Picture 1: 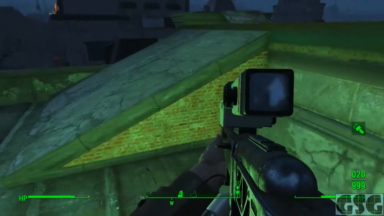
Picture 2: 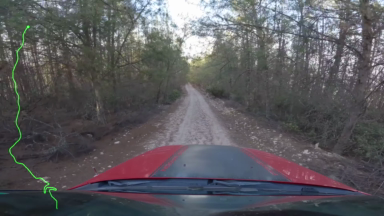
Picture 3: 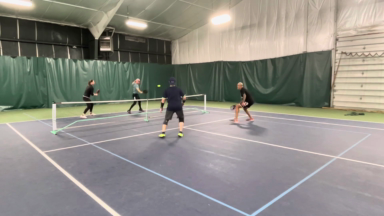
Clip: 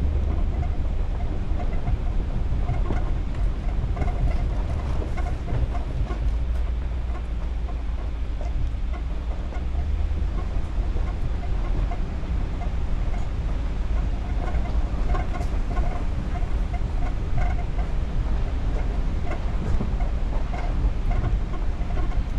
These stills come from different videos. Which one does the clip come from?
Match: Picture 2